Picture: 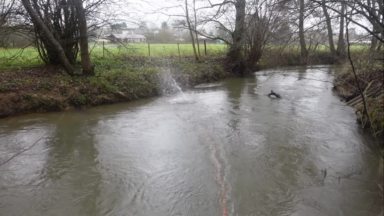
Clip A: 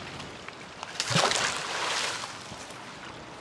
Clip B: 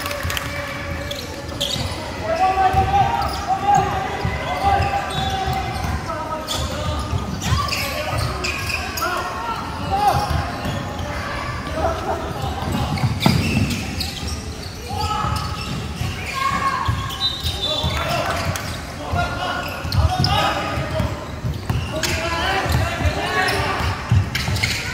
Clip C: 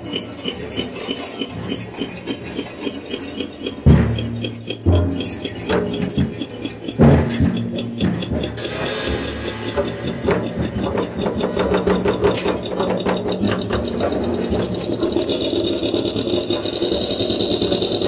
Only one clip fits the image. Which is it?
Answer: A